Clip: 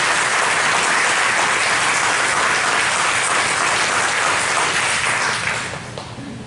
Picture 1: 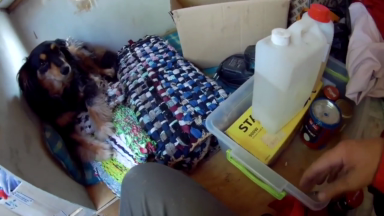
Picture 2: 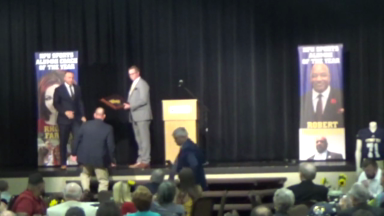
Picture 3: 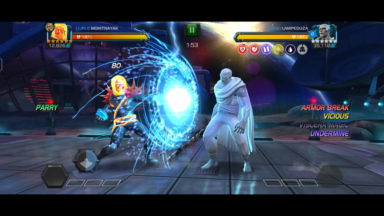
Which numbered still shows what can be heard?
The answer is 2